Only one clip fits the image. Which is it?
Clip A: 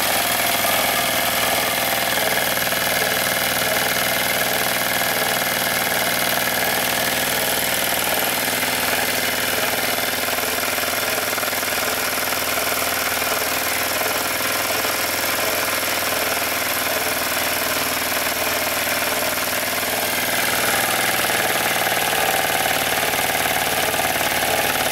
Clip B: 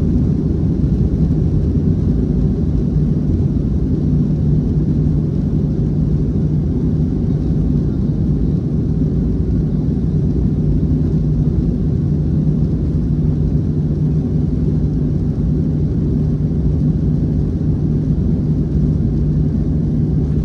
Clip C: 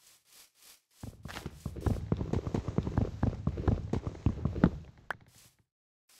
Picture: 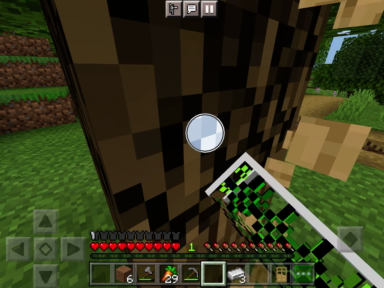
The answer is C